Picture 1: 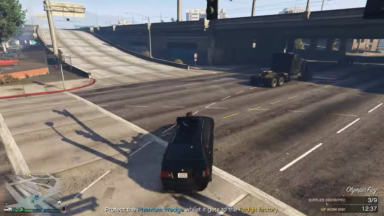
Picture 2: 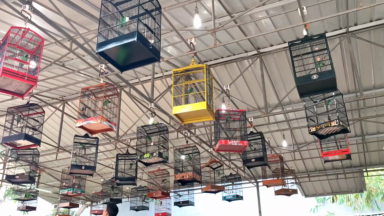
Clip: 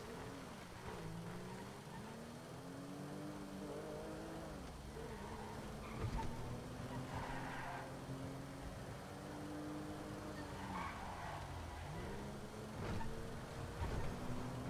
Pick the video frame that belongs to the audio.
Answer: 1